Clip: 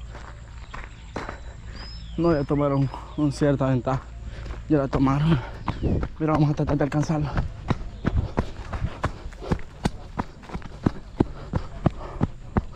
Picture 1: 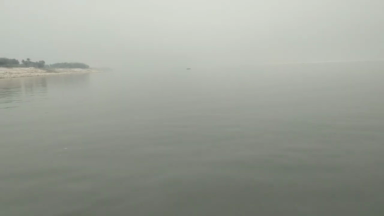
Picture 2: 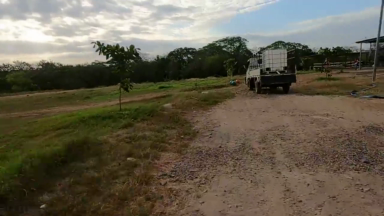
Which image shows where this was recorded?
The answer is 2